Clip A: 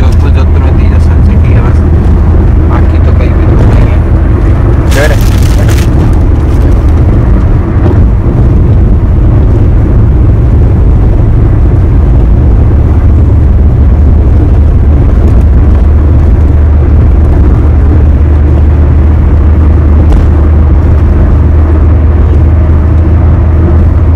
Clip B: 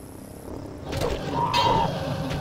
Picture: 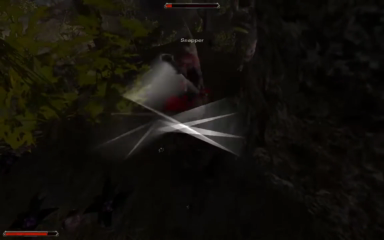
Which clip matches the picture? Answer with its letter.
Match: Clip B